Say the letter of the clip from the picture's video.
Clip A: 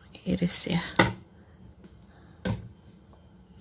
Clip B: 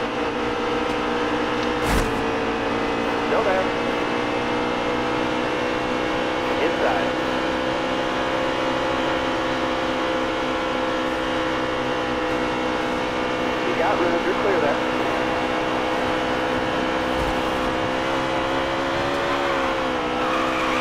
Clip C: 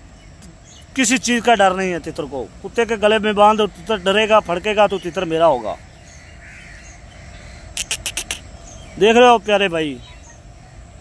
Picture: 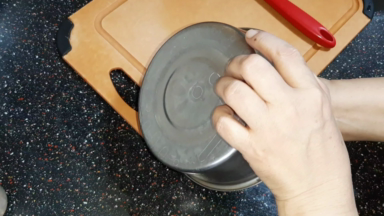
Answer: A